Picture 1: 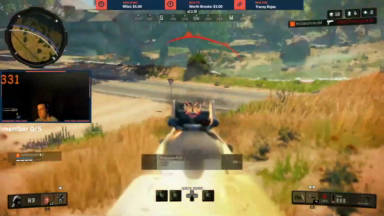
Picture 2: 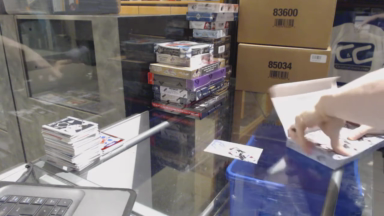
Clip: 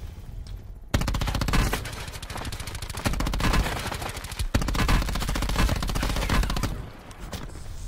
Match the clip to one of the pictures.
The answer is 1